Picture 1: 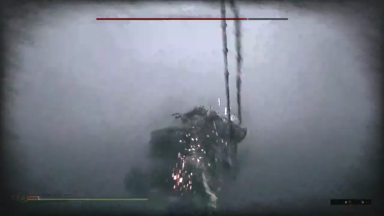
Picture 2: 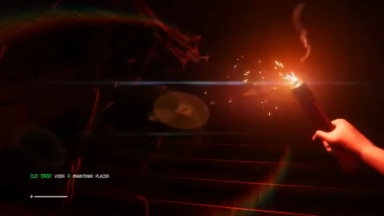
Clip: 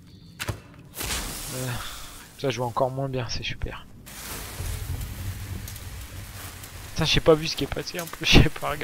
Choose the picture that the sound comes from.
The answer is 2